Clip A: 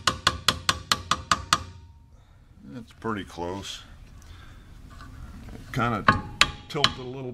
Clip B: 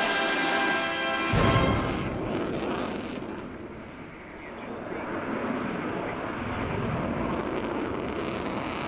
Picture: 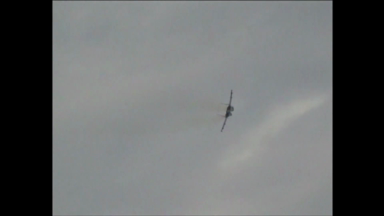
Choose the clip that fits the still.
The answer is B